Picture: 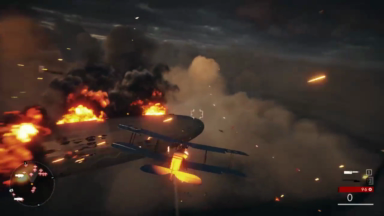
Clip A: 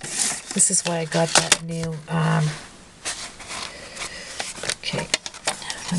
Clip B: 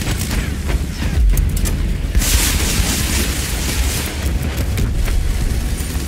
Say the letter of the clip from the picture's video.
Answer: B